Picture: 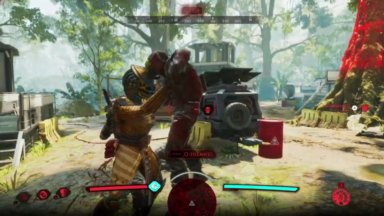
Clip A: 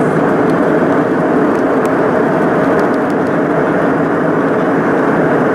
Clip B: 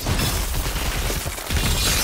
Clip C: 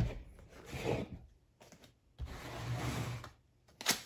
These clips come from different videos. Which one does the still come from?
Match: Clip B